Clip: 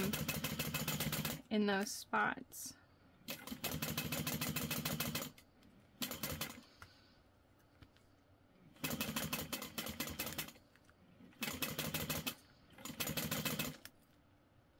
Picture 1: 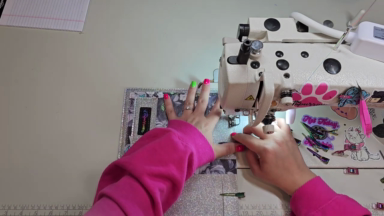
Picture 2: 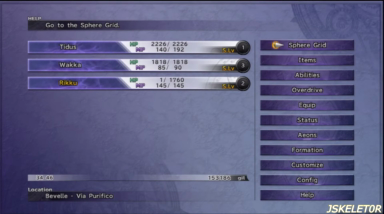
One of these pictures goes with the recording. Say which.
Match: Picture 1